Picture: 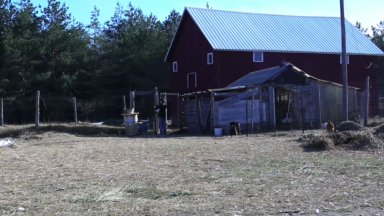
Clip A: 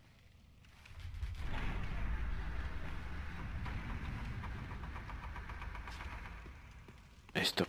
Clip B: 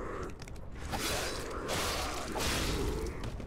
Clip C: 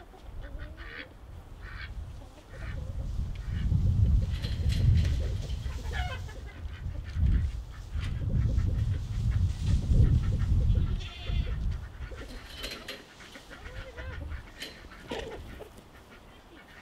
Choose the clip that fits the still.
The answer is C